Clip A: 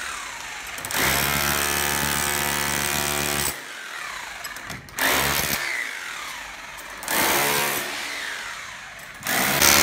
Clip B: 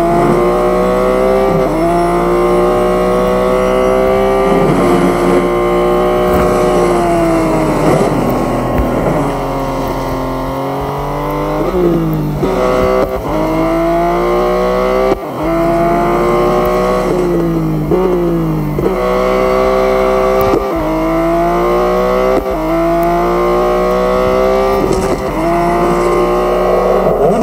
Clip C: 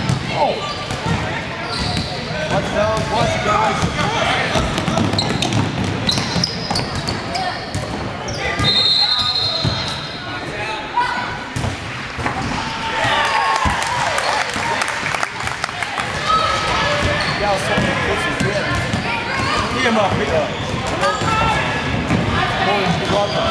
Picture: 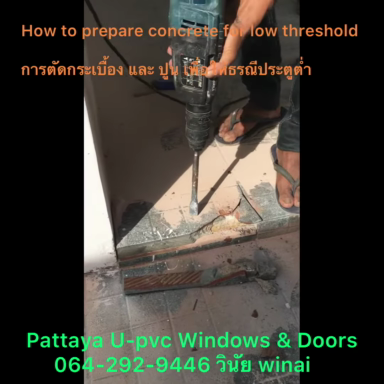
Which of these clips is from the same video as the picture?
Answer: A